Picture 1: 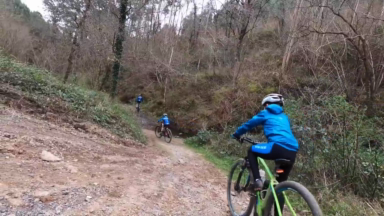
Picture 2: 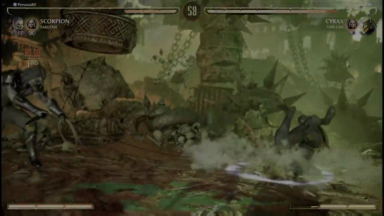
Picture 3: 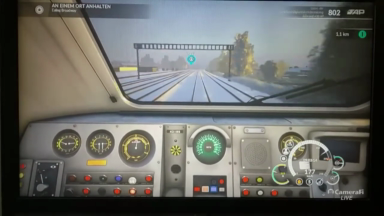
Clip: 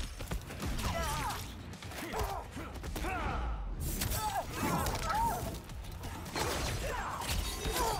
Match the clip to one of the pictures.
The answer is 2